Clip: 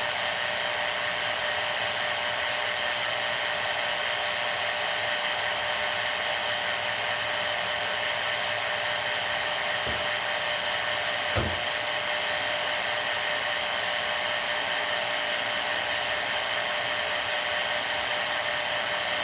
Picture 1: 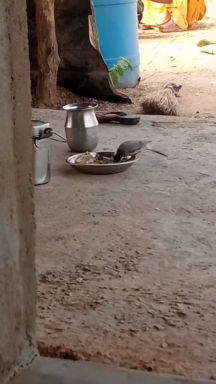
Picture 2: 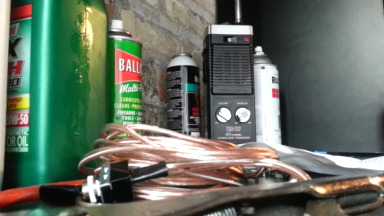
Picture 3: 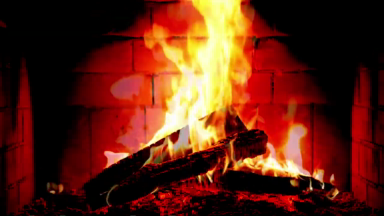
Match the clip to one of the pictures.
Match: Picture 2